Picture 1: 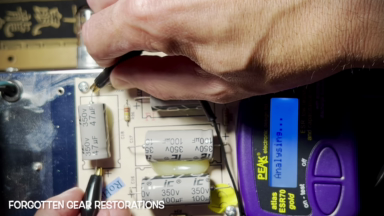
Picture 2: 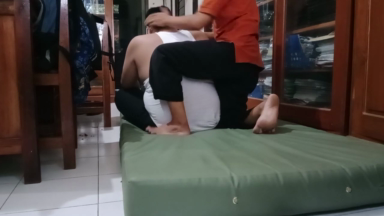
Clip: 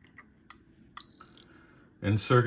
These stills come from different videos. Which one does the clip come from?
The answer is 1